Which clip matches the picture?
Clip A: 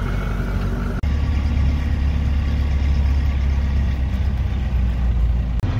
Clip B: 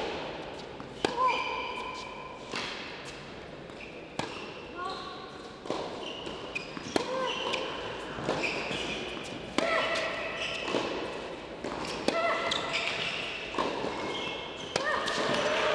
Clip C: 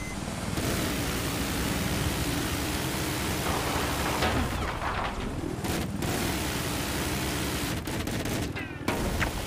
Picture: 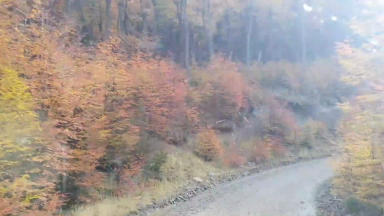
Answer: A